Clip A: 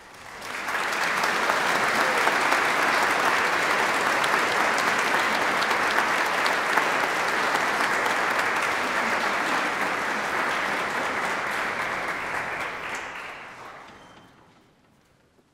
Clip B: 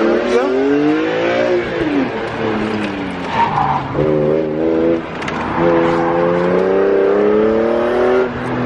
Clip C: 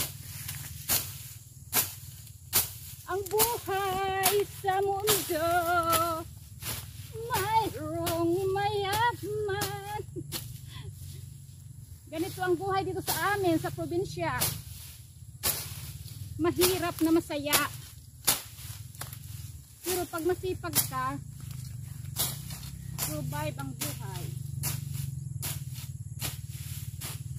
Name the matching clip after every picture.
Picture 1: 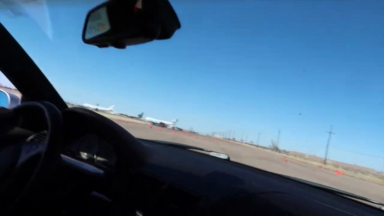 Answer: B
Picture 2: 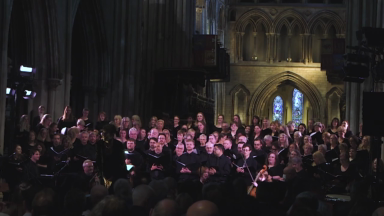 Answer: A